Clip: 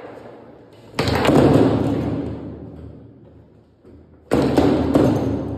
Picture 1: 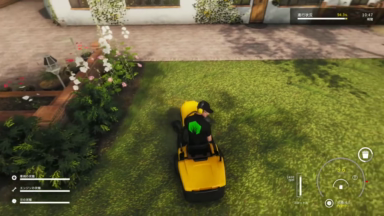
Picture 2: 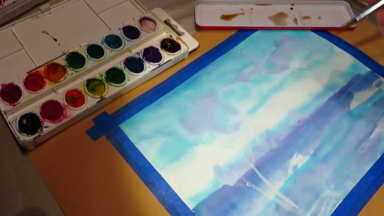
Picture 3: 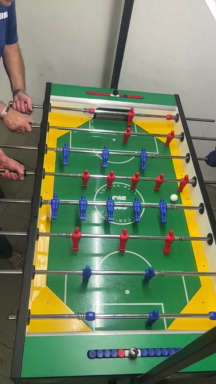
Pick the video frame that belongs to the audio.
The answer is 3